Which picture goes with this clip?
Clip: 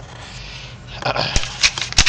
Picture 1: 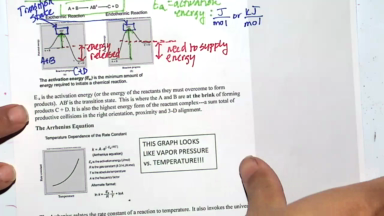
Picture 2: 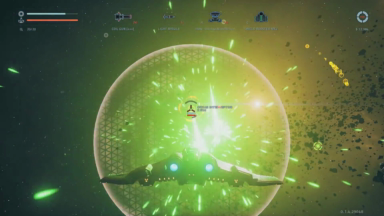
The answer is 1